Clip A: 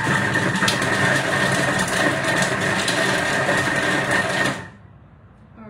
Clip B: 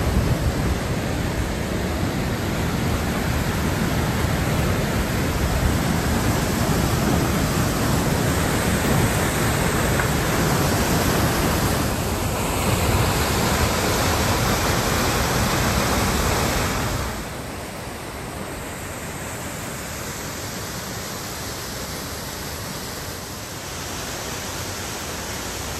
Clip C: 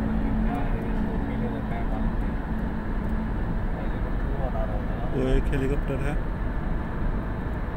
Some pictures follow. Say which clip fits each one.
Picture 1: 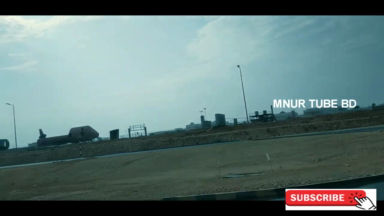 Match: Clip C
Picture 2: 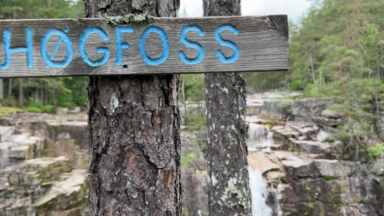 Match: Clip B